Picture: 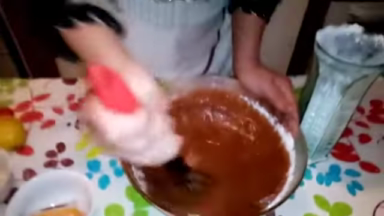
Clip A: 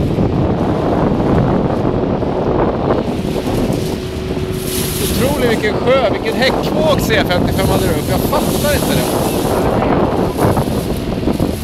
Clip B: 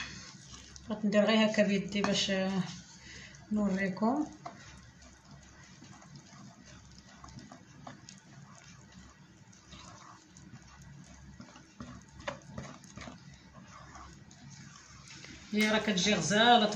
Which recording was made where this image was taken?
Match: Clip B